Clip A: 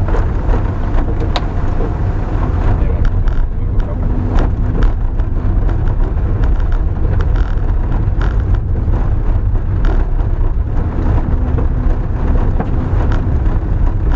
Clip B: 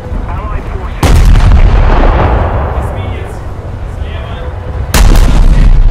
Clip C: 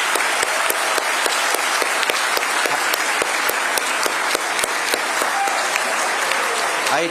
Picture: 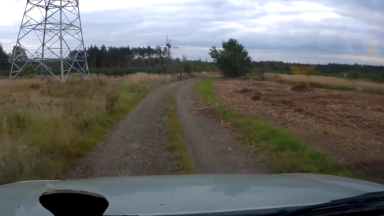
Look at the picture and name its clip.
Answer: A